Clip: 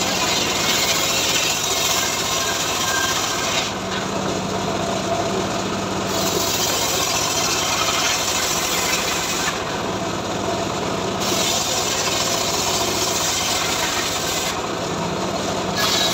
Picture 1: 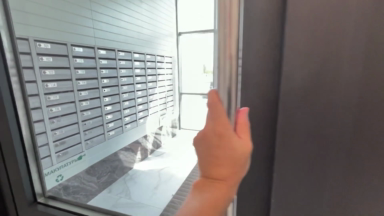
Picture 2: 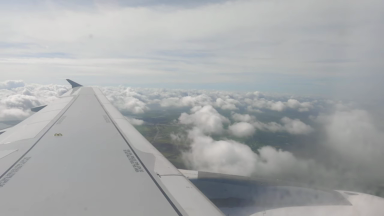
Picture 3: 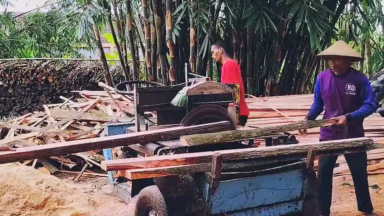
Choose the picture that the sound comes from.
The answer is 3